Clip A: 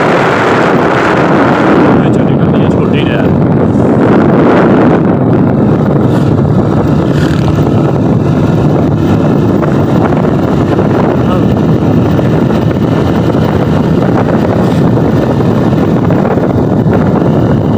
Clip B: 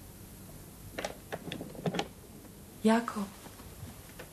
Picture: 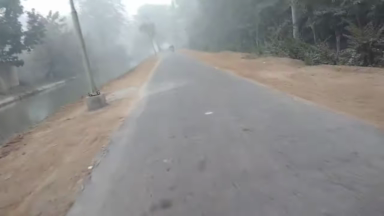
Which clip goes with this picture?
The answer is A